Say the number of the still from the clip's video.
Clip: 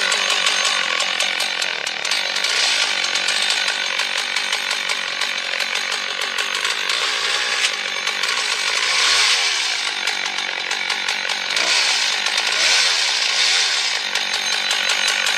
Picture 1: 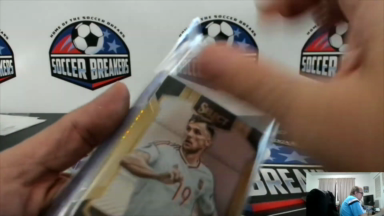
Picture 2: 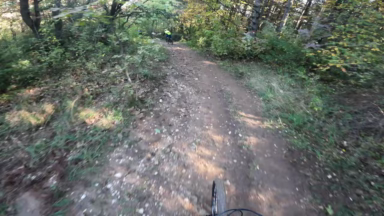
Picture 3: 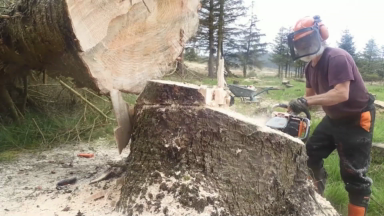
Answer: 3